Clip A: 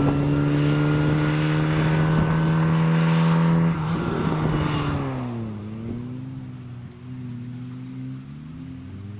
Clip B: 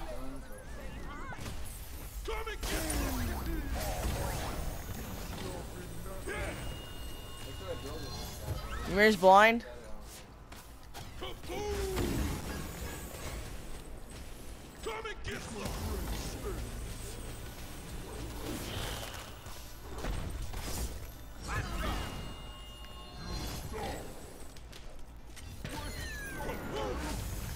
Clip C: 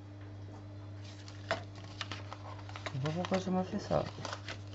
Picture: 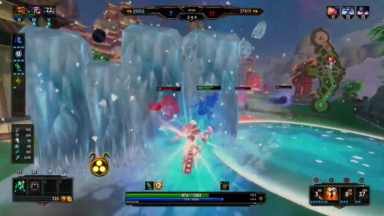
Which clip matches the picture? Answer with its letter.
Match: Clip B